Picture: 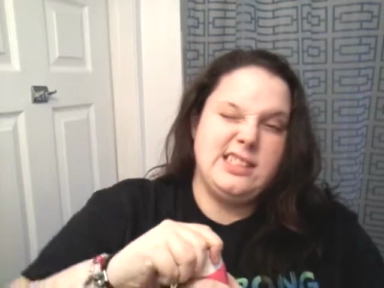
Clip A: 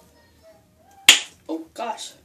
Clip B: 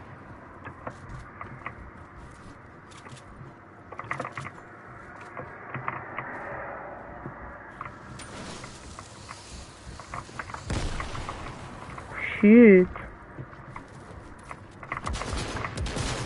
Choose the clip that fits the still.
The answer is A